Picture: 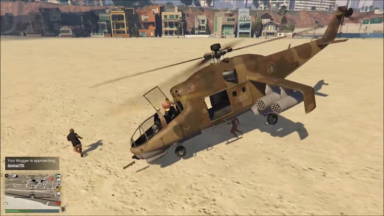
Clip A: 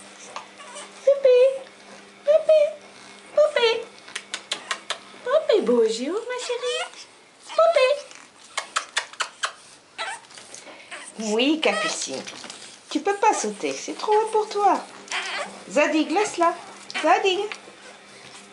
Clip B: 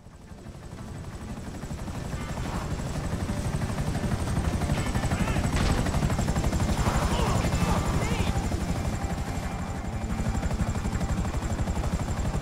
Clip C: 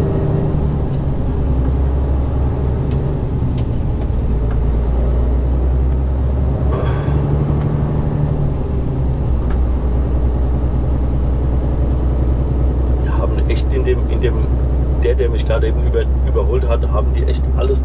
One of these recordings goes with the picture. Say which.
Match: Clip B